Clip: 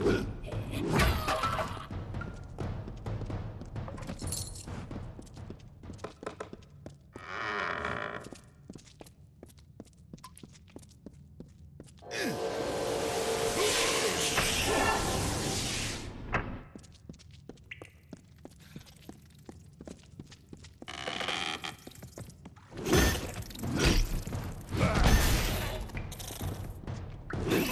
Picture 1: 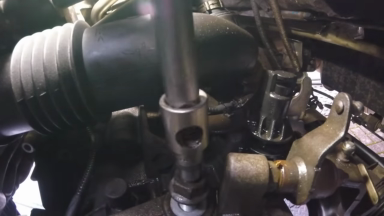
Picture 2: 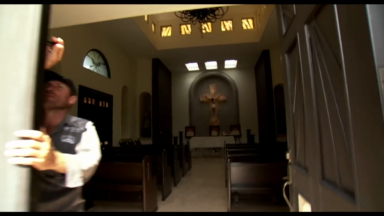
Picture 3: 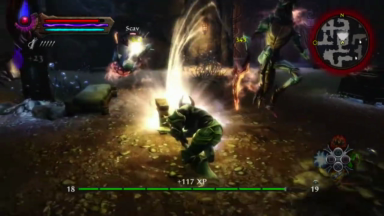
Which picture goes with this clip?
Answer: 3